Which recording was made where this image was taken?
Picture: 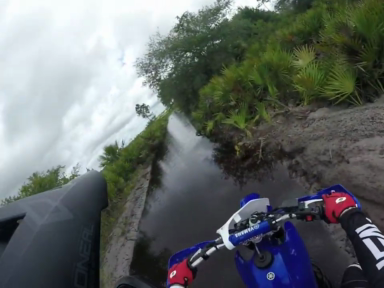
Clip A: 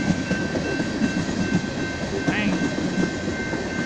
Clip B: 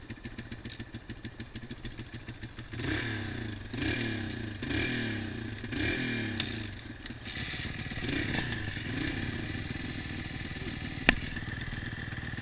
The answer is B